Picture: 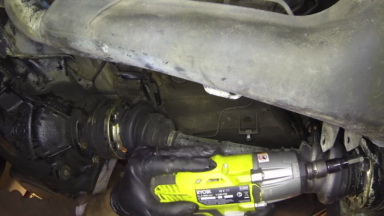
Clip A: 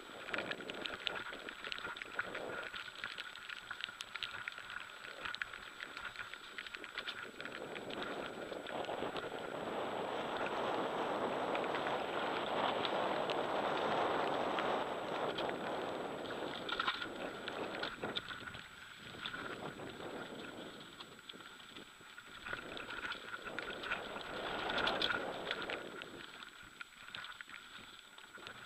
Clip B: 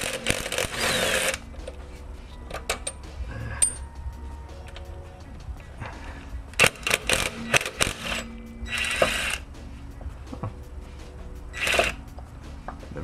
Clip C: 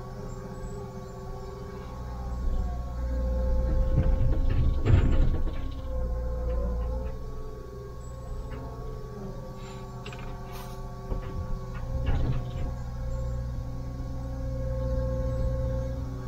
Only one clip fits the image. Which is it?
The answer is B